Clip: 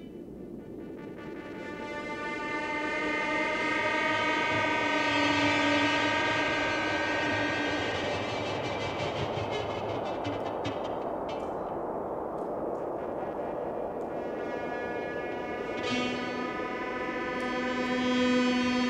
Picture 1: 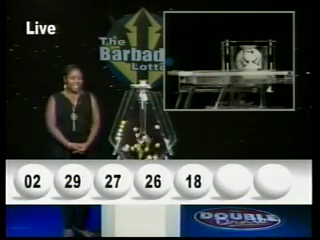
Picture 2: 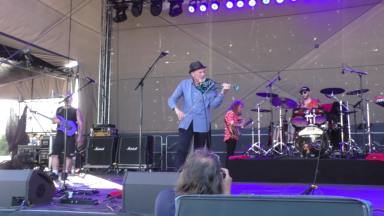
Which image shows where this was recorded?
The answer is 2